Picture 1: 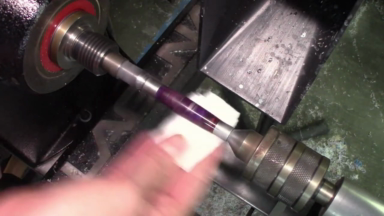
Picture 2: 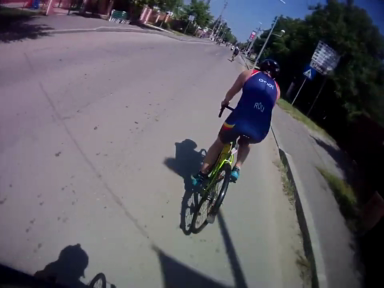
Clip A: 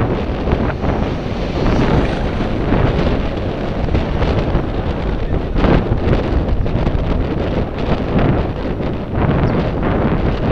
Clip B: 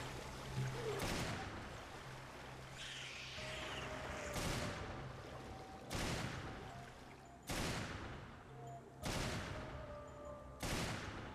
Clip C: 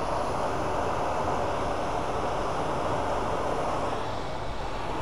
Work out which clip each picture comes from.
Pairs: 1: C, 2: A